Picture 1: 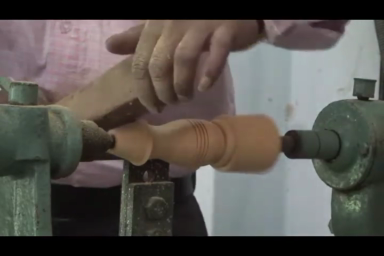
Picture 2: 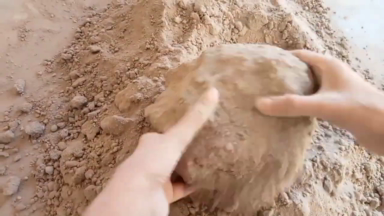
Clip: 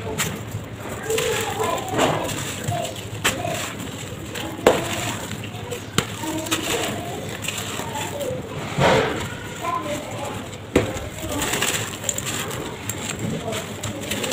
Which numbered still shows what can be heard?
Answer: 2